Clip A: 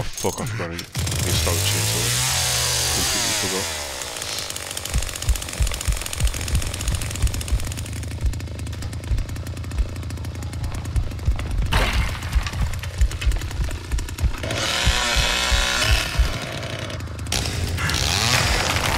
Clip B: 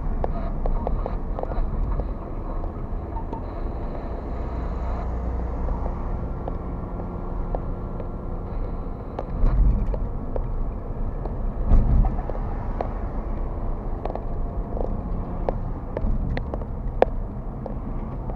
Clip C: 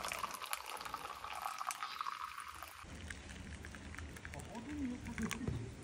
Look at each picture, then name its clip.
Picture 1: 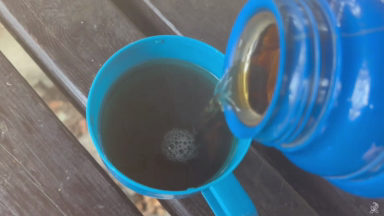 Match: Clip C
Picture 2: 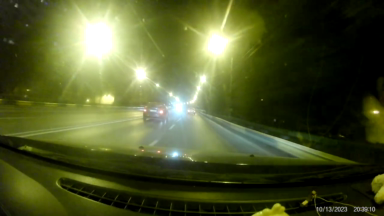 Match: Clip B